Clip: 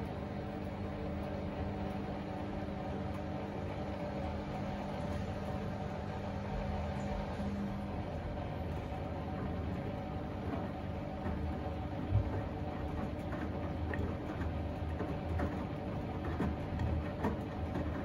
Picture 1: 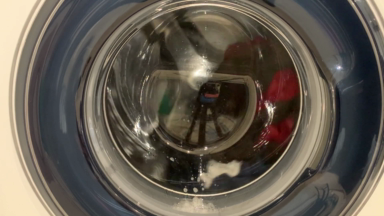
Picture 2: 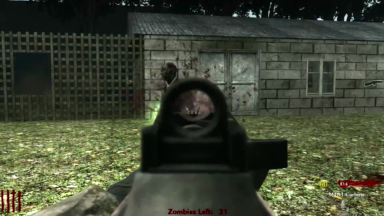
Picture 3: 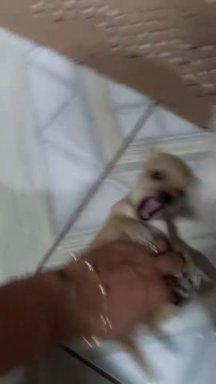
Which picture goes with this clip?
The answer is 1